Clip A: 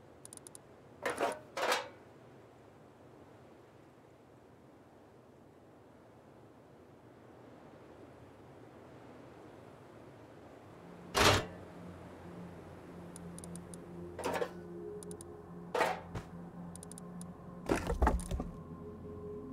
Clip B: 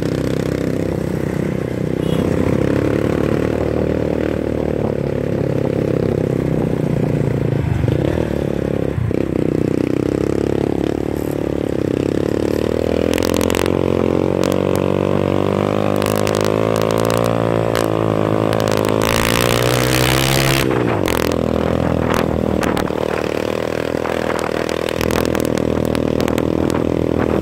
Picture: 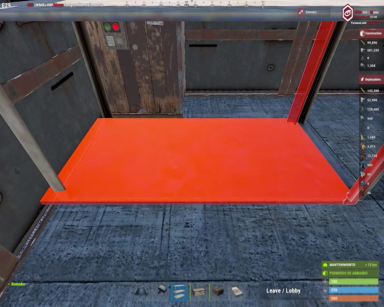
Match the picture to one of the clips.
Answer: A